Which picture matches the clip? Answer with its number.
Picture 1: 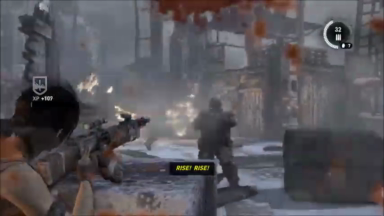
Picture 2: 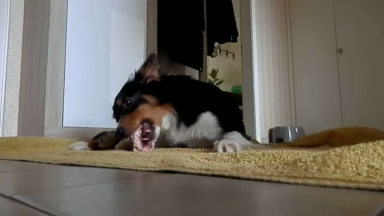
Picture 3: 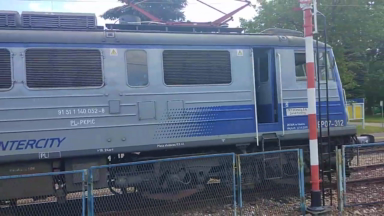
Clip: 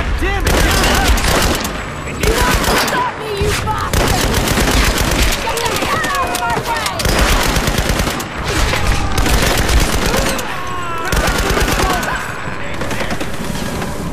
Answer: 1